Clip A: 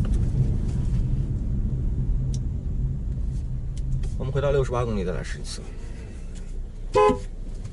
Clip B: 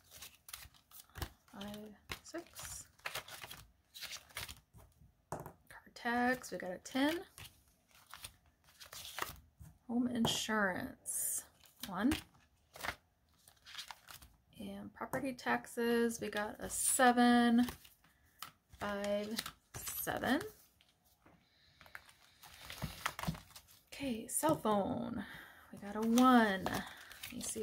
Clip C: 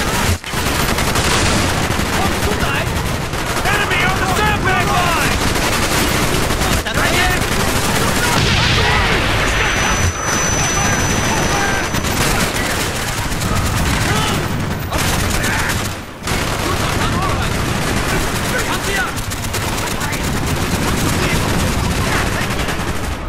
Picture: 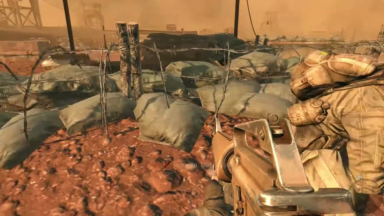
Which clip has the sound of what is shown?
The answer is C